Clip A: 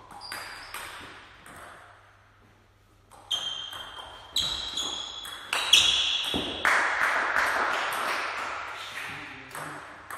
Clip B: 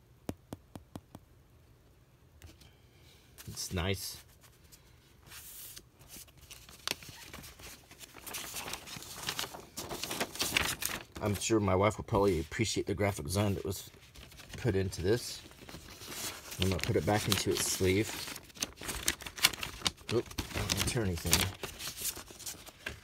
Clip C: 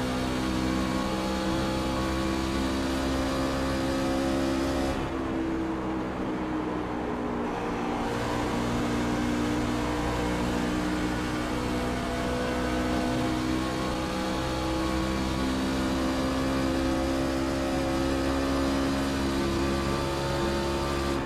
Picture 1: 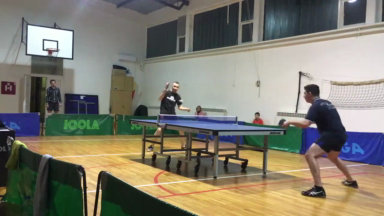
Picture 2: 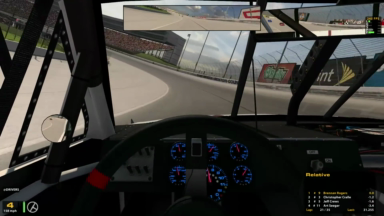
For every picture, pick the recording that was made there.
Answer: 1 A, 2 C